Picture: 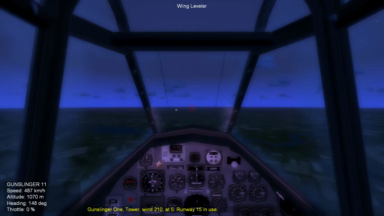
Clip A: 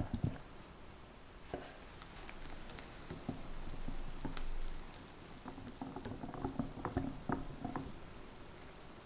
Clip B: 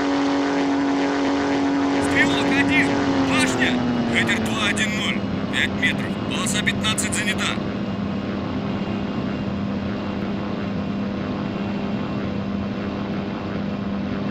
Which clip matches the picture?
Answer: B